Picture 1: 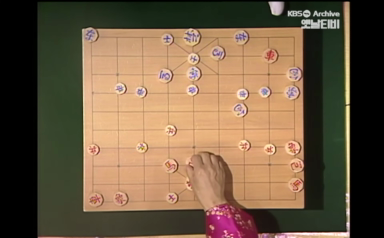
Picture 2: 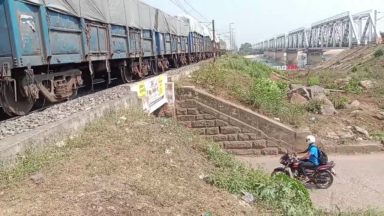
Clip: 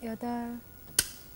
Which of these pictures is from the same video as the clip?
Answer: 1